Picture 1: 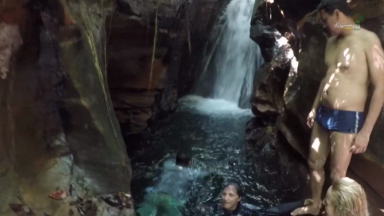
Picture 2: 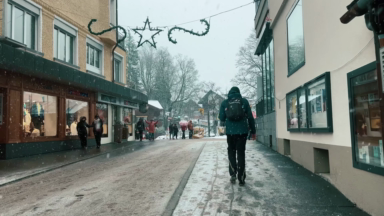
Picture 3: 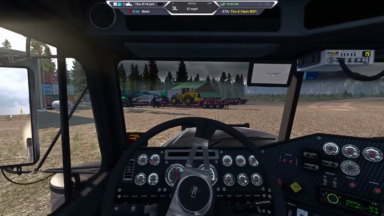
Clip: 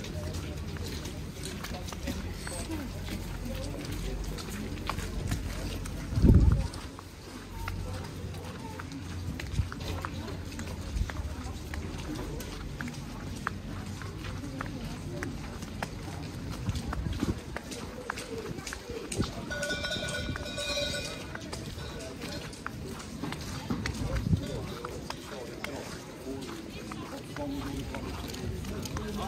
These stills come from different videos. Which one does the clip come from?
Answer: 2